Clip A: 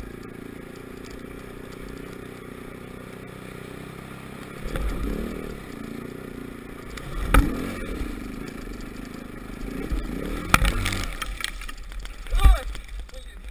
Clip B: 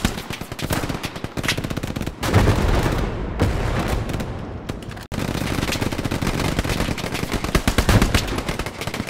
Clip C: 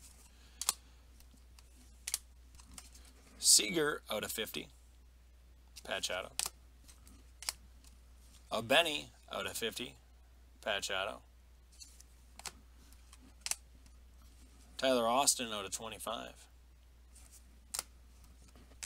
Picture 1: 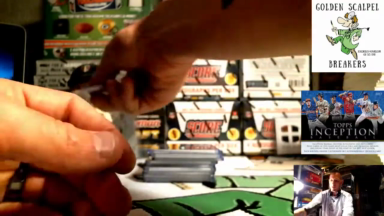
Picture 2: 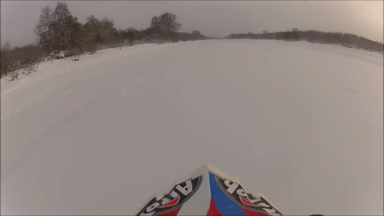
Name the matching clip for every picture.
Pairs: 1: C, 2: A